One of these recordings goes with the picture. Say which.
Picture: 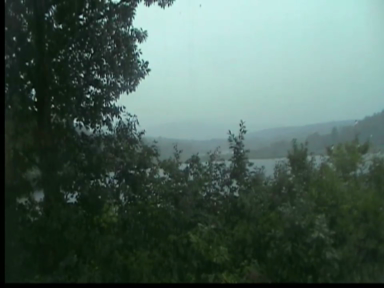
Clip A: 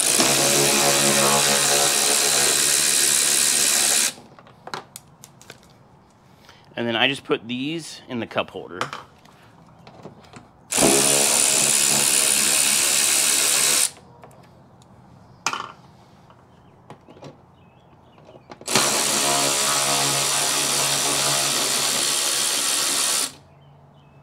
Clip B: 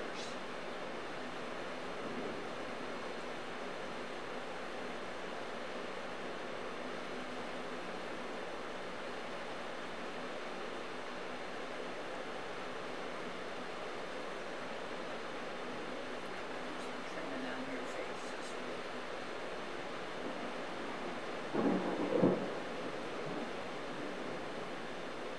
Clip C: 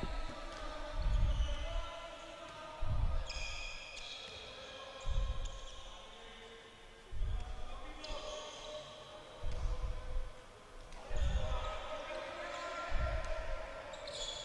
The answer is B